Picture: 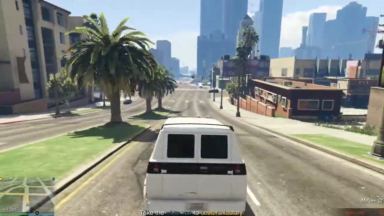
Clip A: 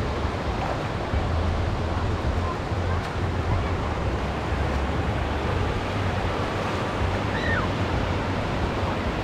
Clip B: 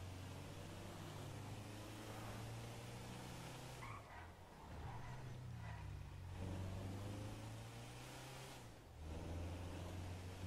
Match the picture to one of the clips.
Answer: B